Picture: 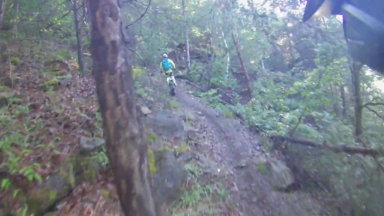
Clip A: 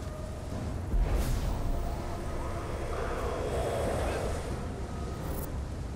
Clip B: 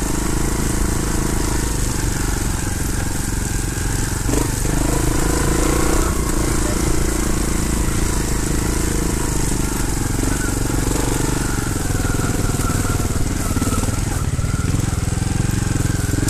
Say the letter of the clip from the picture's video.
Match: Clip B